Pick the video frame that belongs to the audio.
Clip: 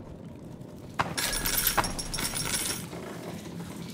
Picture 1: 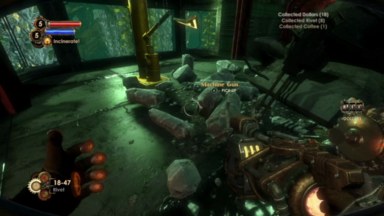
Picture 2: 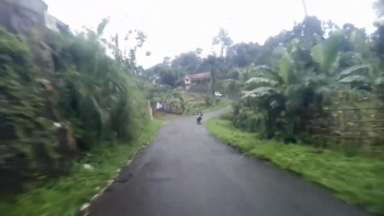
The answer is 1